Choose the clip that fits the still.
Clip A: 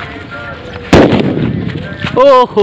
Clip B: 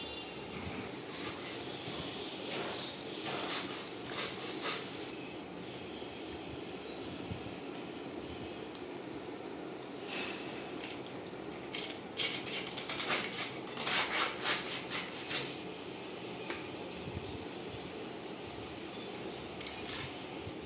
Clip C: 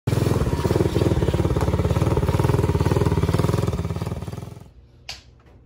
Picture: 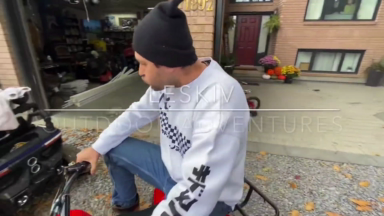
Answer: C